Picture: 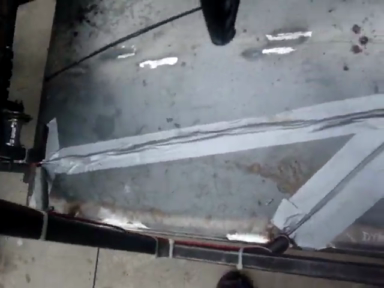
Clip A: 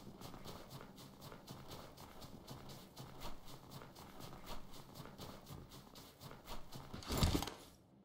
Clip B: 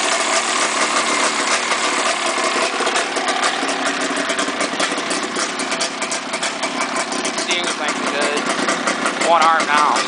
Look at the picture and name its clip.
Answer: B